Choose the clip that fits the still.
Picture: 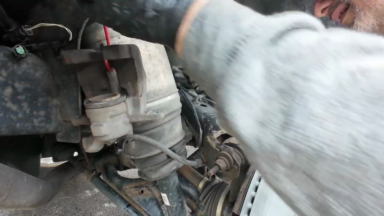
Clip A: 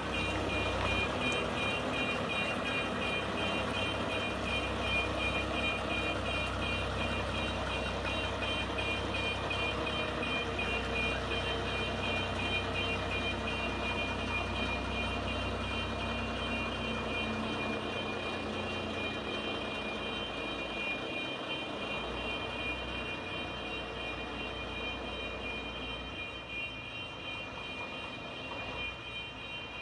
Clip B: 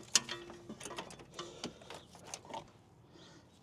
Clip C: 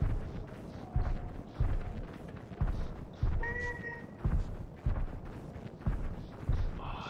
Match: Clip B